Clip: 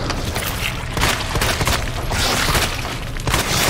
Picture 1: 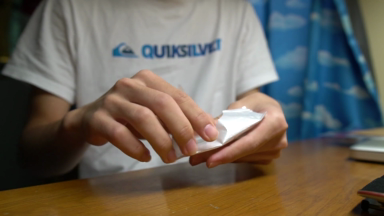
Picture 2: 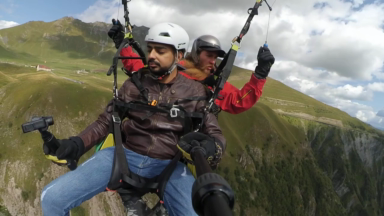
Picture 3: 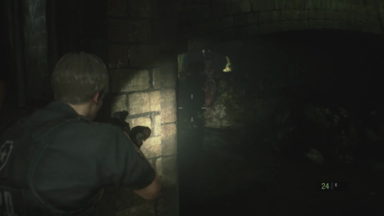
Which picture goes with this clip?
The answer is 3